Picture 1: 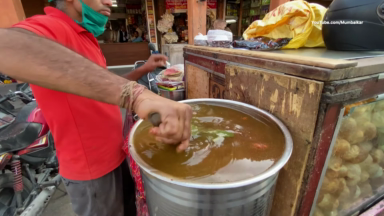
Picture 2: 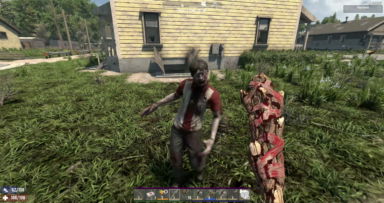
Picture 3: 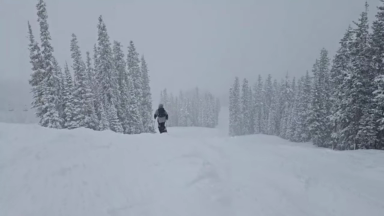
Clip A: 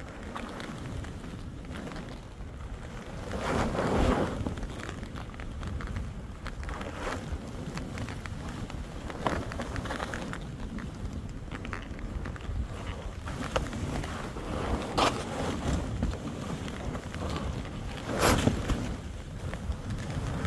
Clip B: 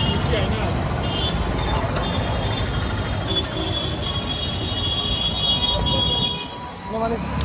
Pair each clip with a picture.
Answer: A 3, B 1